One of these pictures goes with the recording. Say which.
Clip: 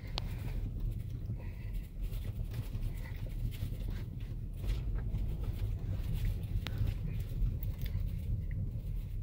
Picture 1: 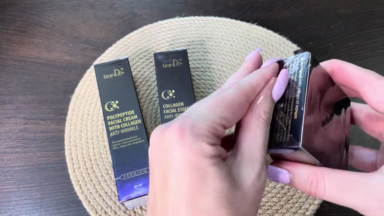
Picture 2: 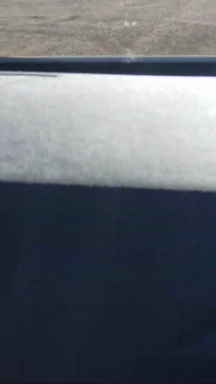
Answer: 2